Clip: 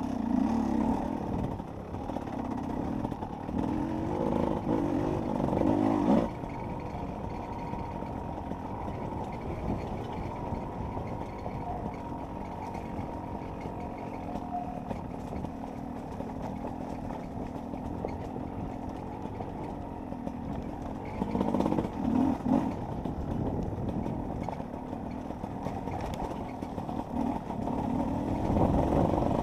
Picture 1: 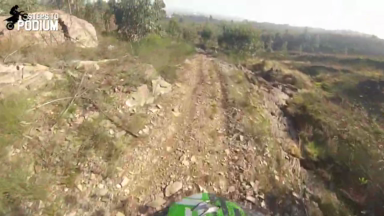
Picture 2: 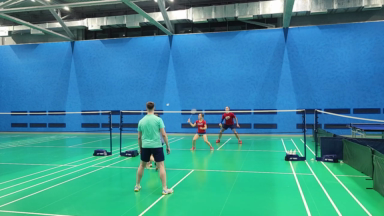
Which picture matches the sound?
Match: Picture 1